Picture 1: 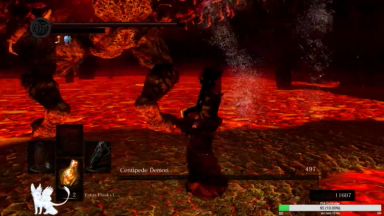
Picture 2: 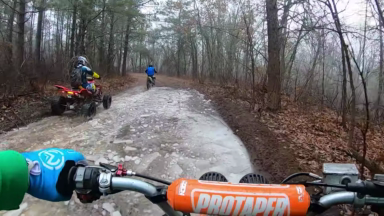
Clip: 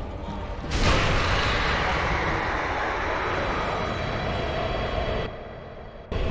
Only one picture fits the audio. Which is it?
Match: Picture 1